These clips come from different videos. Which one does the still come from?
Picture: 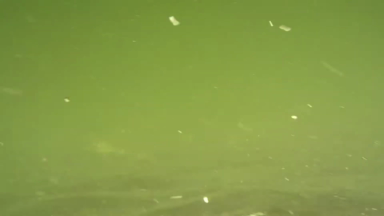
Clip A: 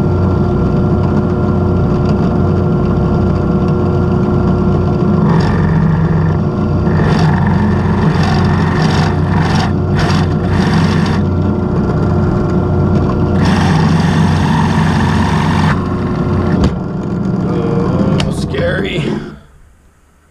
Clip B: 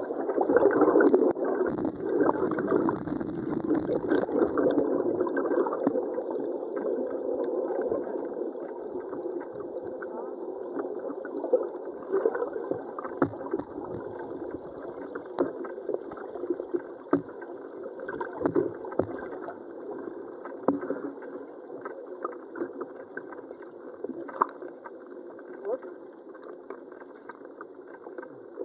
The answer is B